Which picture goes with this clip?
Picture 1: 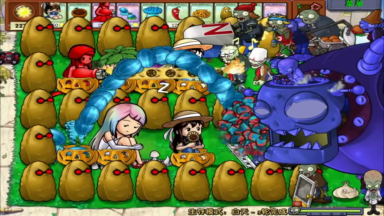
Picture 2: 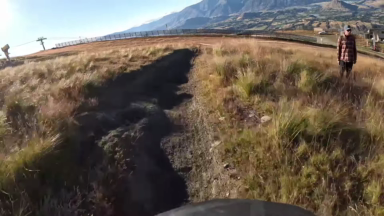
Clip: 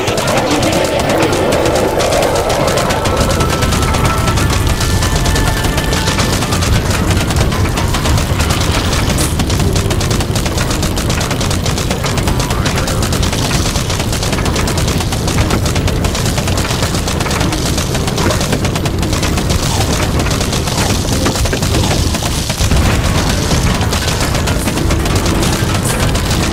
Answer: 1